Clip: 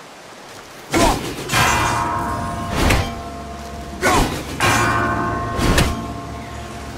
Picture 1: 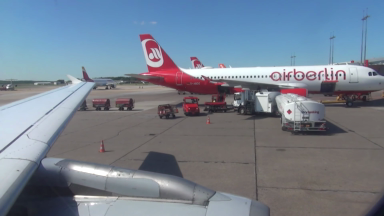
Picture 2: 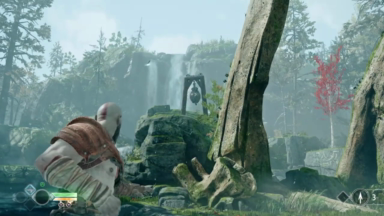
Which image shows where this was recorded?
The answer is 2